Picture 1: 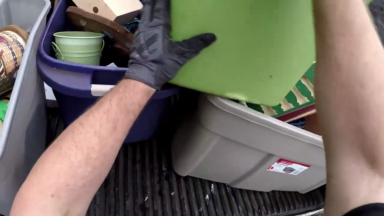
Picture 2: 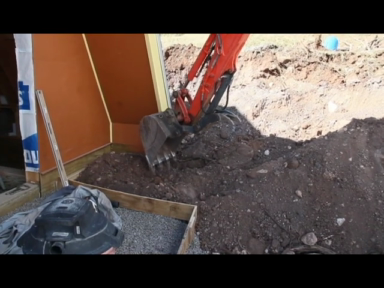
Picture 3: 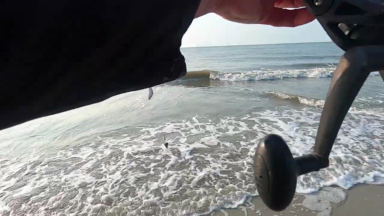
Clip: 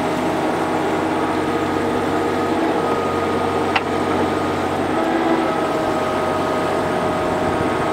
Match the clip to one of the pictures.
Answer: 2